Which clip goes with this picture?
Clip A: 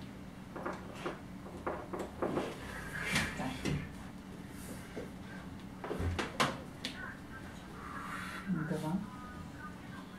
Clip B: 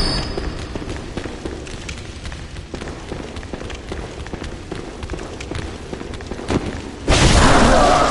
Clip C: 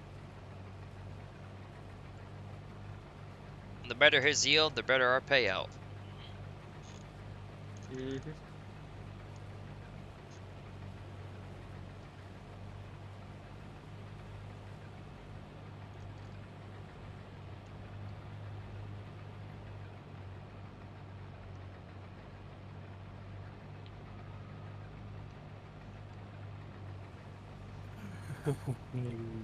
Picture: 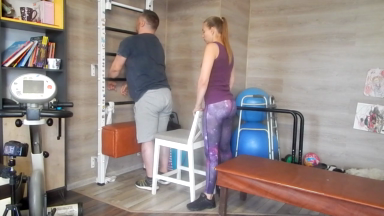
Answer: A